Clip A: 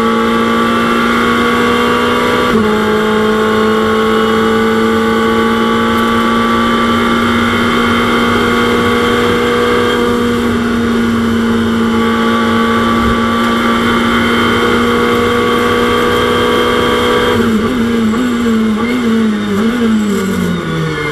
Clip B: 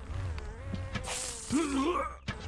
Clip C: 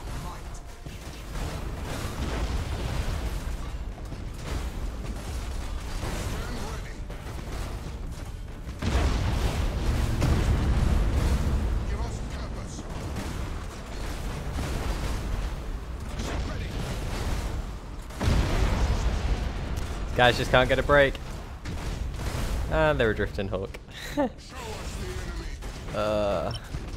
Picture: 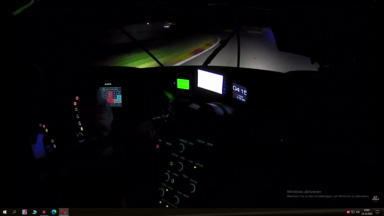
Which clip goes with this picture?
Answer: A